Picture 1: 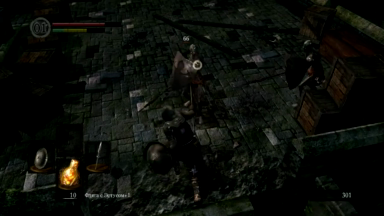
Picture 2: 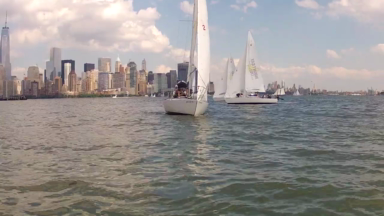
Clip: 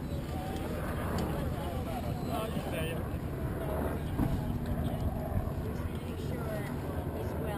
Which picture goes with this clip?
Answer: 2